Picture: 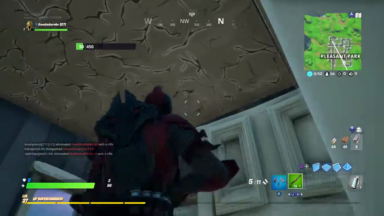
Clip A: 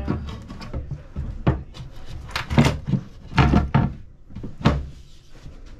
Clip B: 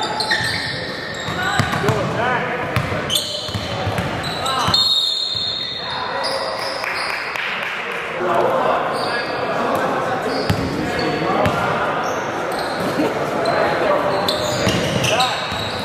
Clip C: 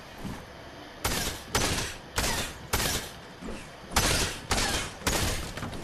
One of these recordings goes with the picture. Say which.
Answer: C